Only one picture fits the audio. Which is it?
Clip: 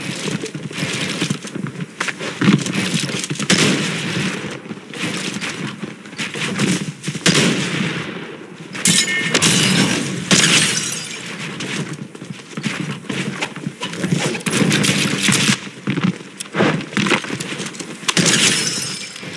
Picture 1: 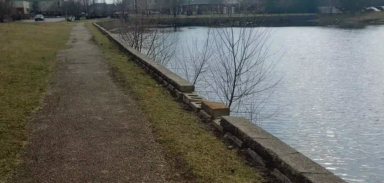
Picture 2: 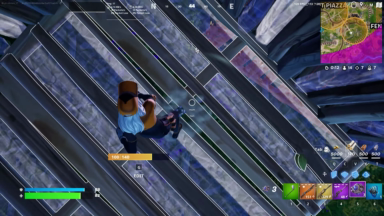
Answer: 2